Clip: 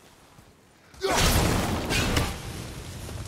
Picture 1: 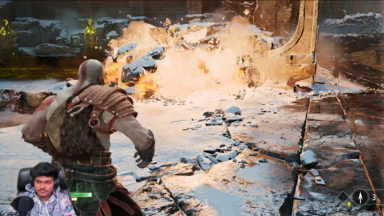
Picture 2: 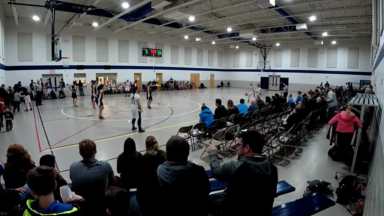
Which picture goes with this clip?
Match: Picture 1